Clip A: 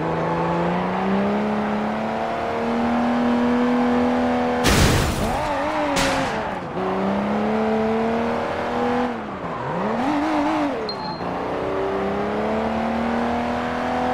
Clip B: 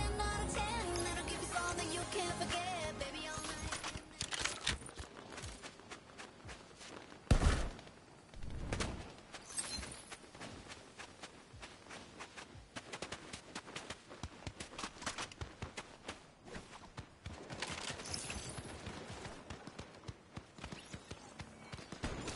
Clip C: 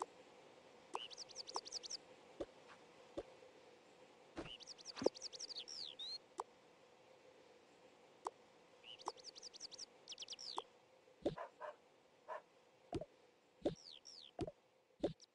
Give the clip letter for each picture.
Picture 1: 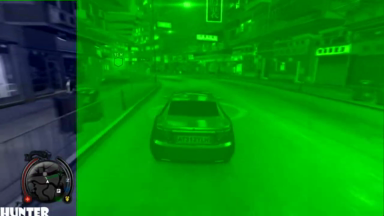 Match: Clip A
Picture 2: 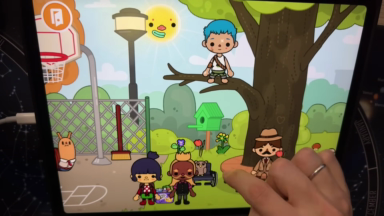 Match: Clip C